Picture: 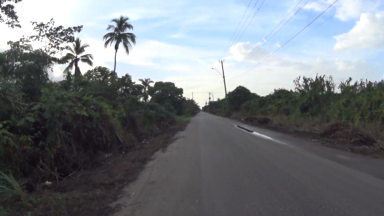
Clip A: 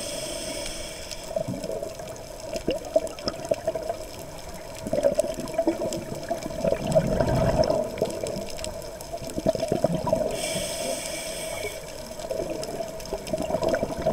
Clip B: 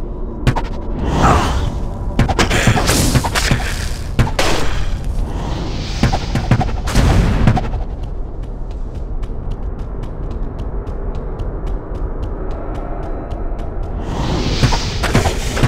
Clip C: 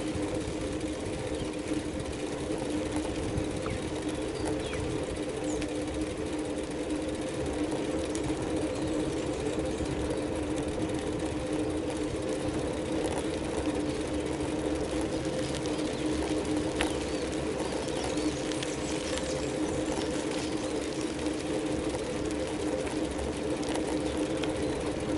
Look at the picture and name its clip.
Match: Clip C